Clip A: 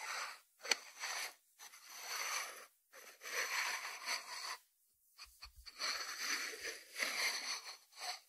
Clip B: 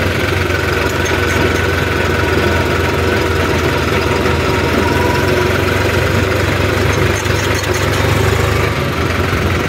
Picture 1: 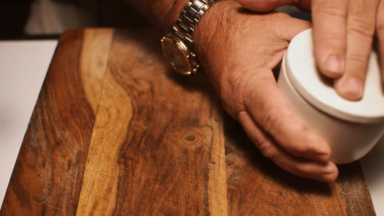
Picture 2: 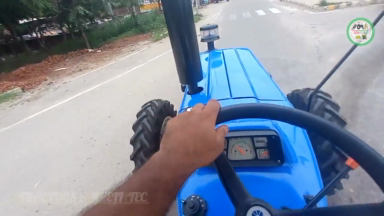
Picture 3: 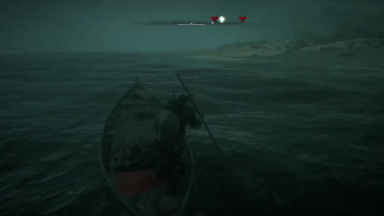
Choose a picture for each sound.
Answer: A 1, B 2